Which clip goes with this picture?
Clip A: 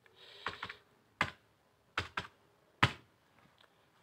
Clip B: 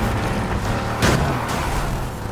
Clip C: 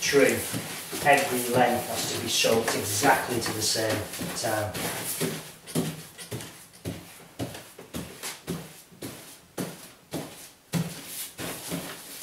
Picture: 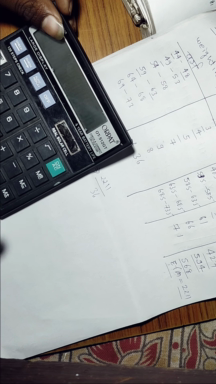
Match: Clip A